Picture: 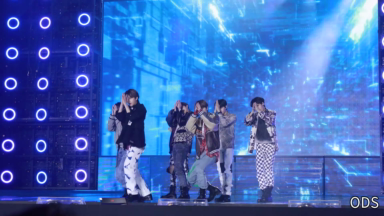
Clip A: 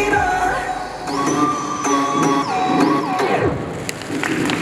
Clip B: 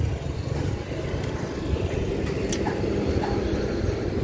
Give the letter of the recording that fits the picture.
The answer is A